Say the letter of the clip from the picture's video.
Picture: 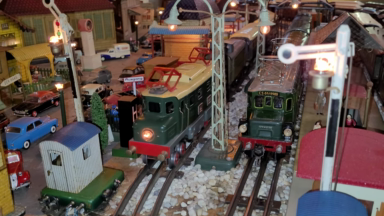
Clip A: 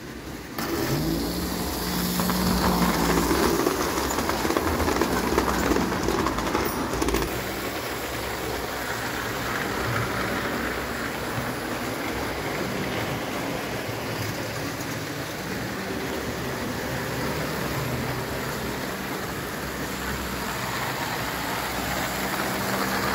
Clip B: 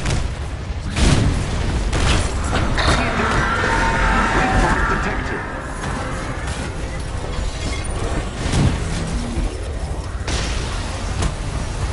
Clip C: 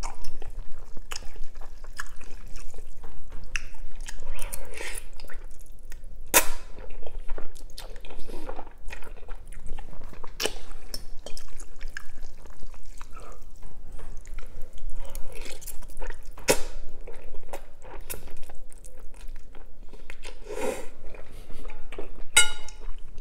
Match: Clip A